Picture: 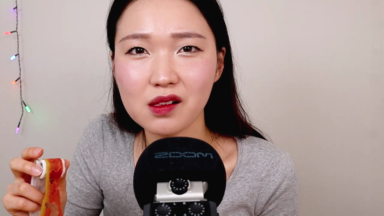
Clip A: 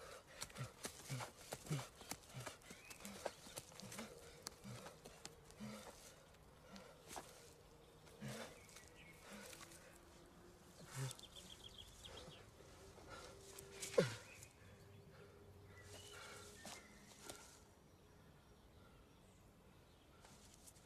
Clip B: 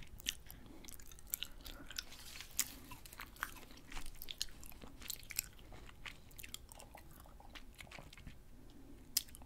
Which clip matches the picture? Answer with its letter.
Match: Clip B